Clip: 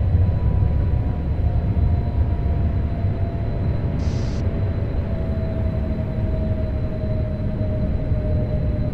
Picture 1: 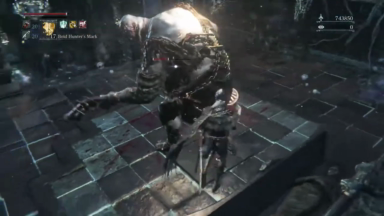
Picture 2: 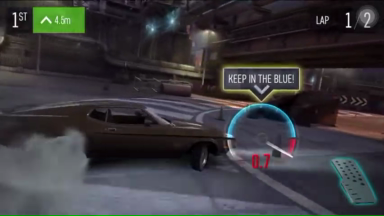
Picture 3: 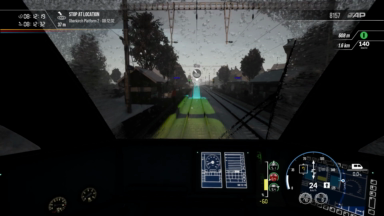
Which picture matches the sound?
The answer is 3